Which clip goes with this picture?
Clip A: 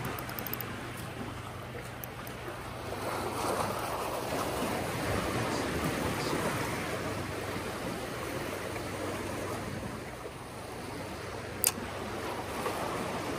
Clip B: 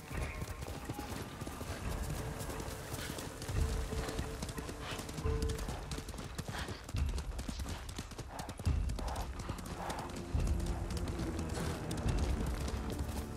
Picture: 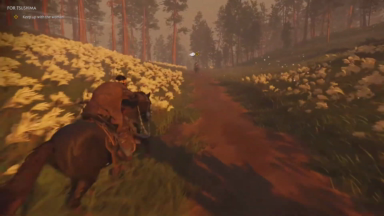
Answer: B